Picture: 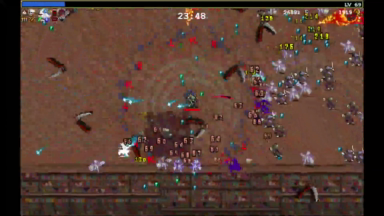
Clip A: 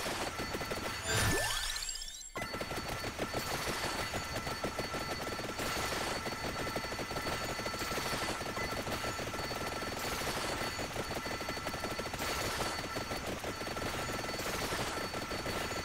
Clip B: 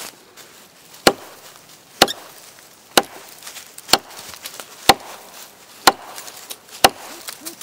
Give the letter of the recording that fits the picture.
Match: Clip A